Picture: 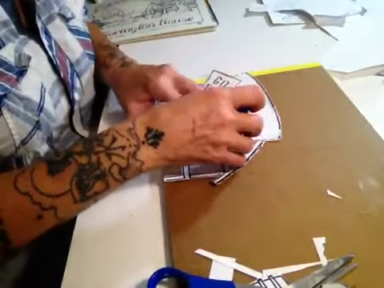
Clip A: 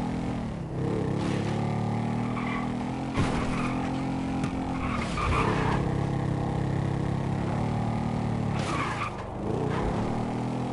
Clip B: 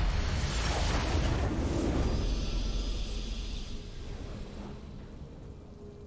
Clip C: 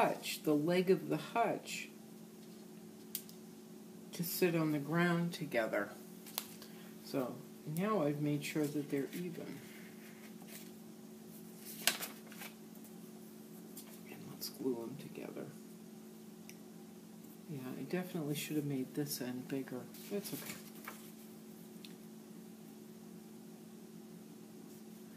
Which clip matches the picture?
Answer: C